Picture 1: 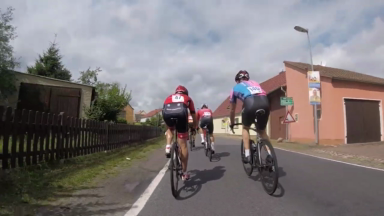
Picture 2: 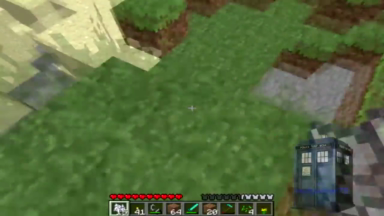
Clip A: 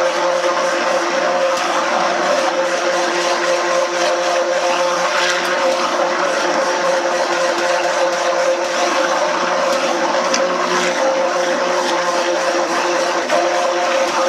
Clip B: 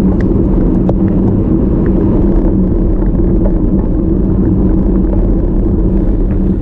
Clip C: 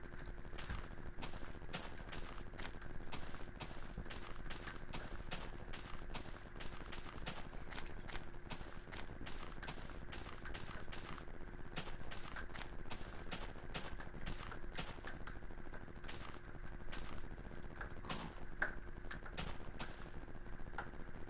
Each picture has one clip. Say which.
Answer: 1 B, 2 C